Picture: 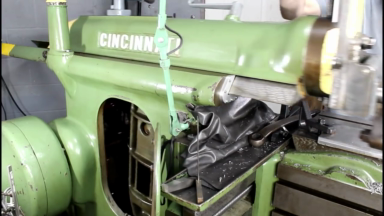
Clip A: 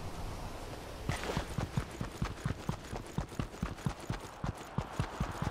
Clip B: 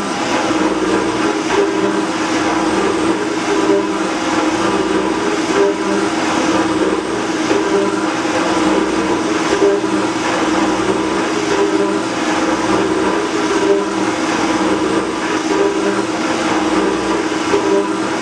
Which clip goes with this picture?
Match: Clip B